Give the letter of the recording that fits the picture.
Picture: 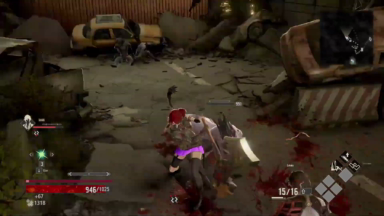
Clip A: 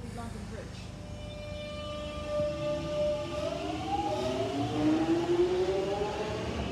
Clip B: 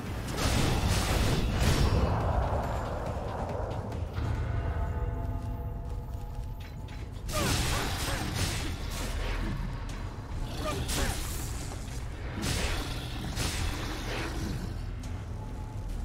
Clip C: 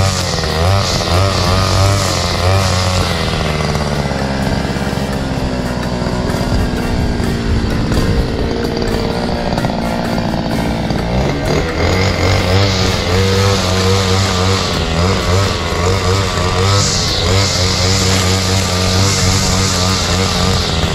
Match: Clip B